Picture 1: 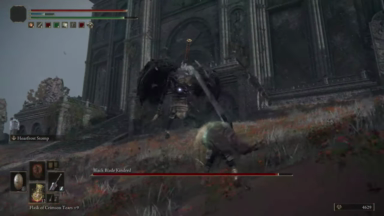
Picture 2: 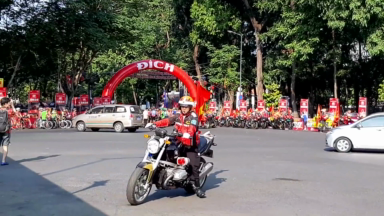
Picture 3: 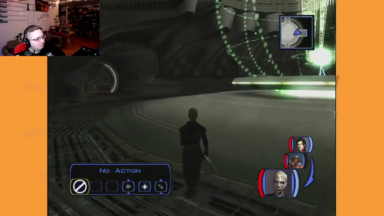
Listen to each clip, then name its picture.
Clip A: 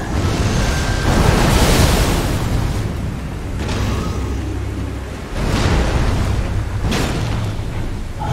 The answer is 1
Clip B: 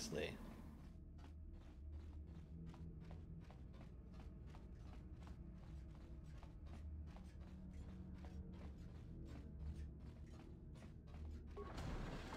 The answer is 3